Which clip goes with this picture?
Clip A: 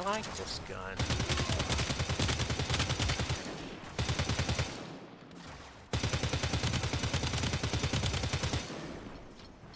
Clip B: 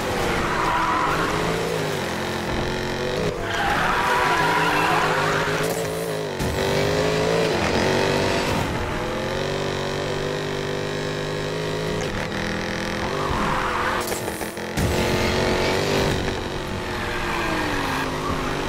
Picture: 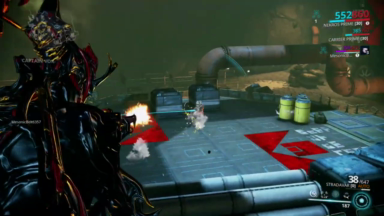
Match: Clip A